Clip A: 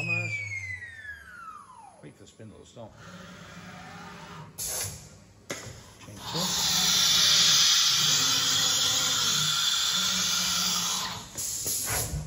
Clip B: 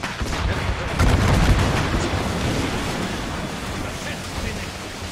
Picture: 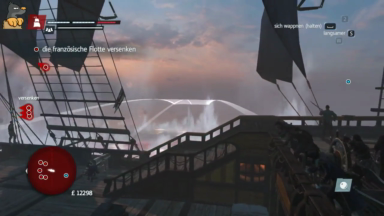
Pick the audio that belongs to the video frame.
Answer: B